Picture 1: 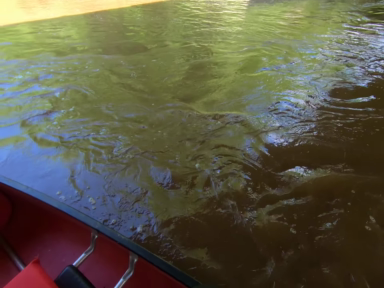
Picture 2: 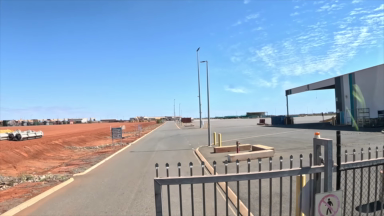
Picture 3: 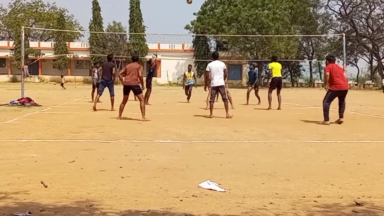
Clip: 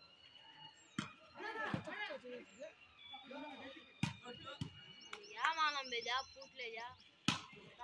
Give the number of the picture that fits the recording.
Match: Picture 3